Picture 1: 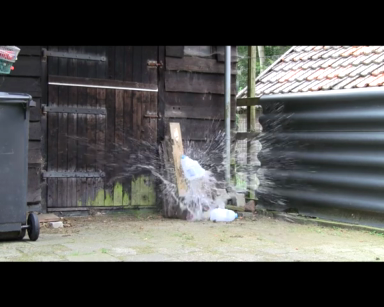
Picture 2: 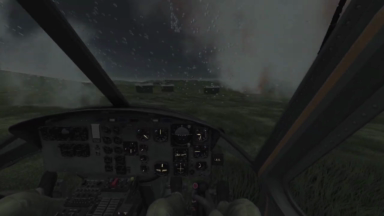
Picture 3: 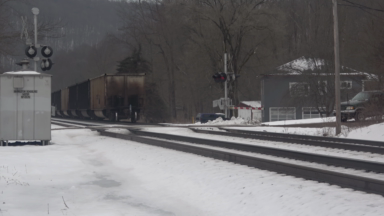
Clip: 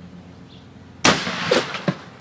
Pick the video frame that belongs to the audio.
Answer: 1